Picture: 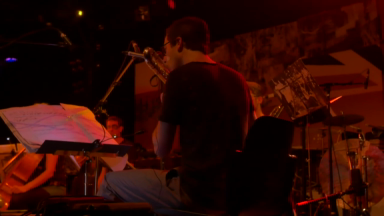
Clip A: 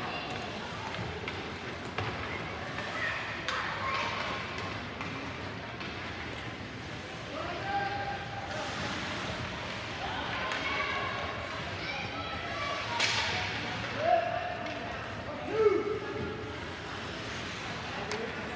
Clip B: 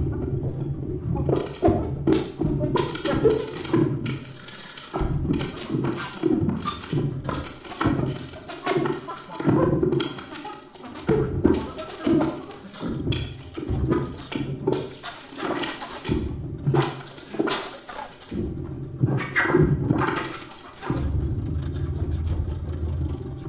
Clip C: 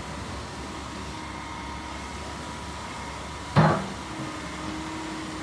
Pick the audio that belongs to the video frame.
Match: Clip B